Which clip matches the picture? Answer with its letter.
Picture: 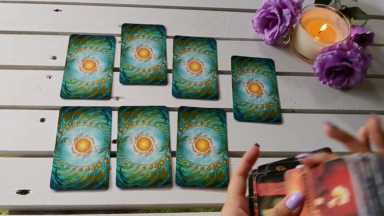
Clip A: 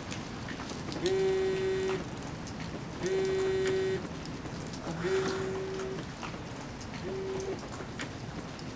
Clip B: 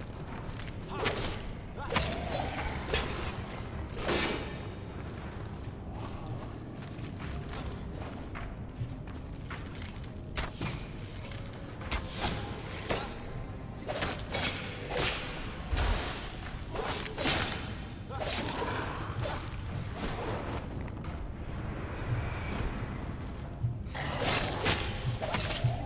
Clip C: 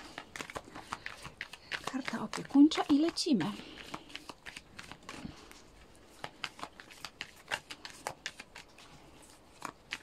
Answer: C